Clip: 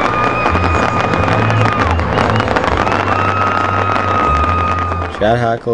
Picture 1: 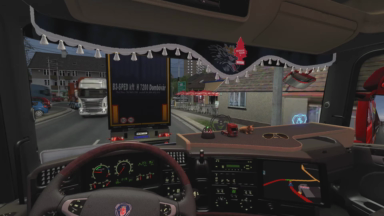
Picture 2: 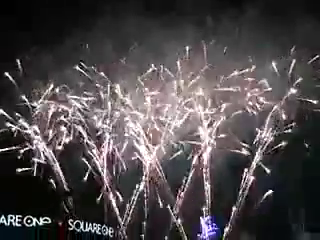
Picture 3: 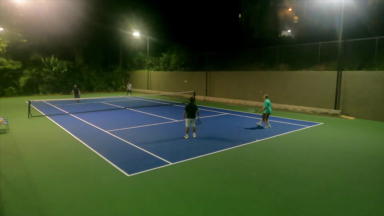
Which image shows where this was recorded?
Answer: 2